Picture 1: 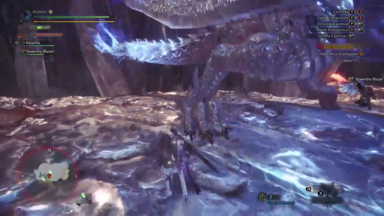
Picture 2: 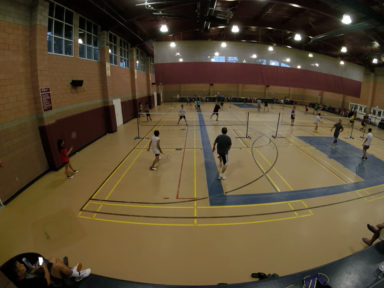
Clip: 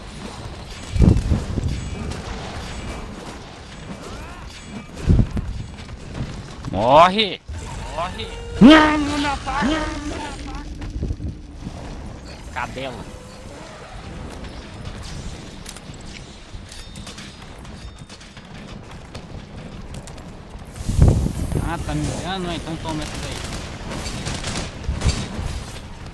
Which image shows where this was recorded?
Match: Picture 1